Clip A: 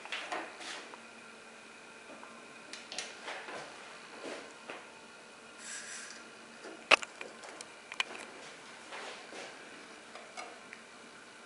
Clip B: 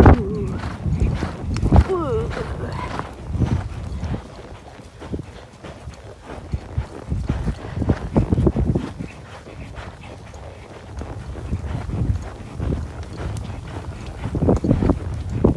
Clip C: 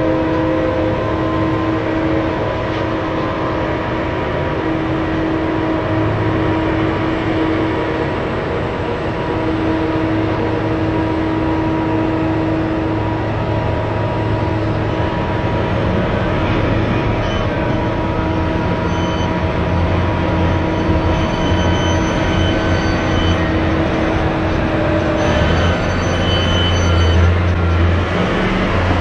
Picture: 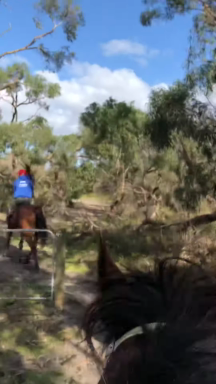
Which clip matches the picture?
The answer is B